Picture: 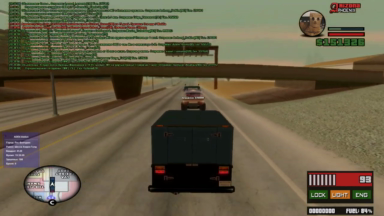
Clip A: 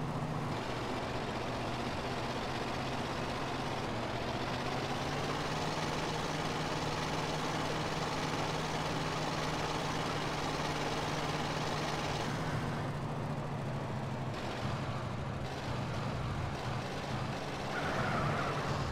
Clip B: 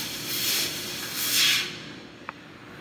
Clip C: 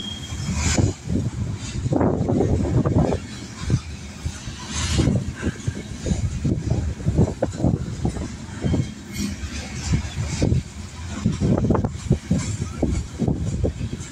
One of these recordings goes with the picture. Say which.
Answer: A